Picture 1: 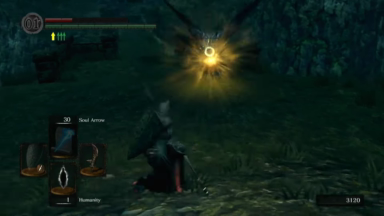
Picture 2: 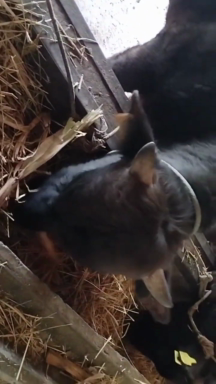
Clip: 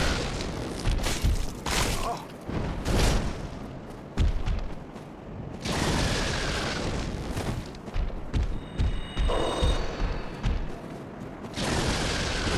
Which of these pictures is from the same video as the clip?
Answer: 1